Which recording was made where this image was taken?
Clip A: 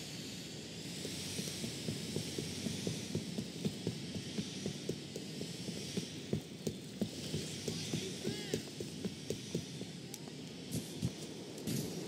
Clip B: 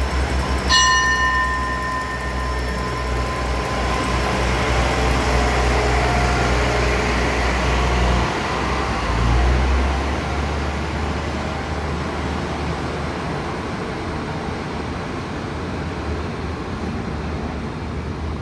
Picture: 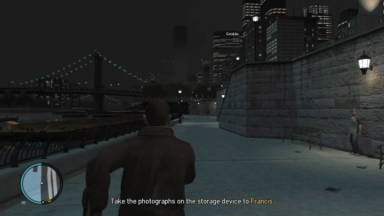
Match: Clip A